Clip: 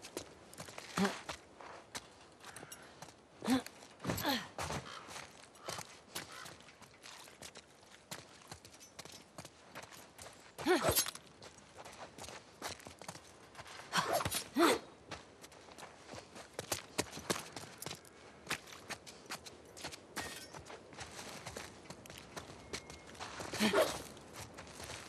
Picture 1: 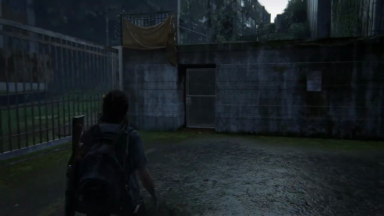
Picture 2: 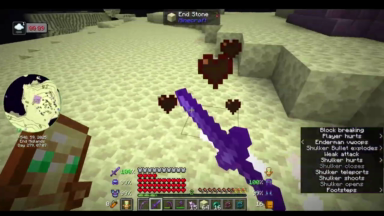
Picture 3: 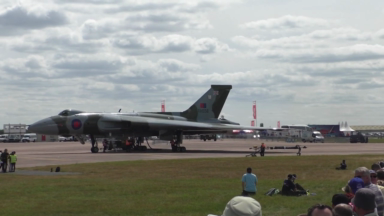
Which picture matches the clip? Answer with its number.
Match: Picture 1